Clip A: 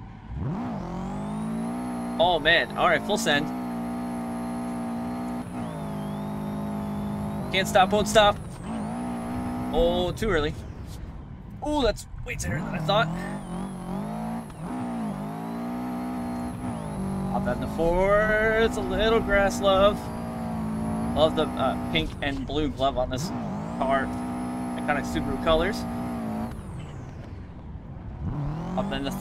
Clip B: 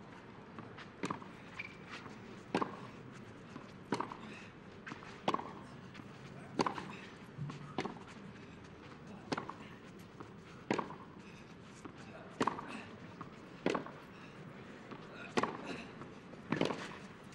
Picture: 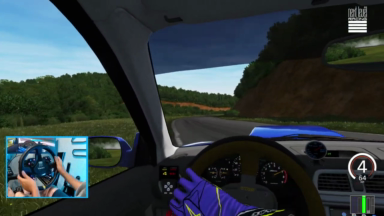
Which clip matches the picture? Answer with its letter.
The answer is A